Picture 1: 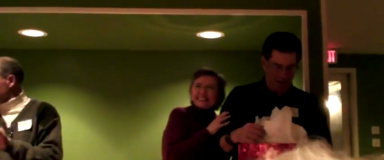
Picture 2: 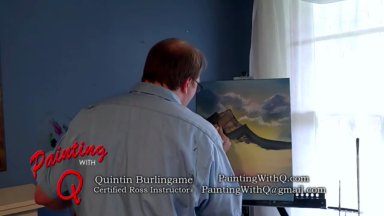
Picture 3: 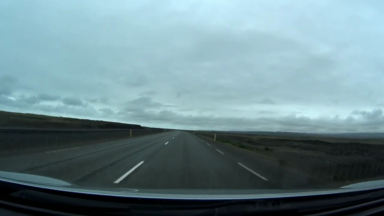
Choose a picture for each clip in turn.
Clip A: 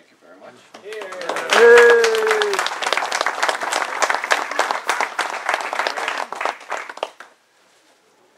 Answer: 1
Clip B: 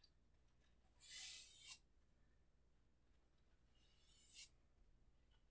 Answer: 2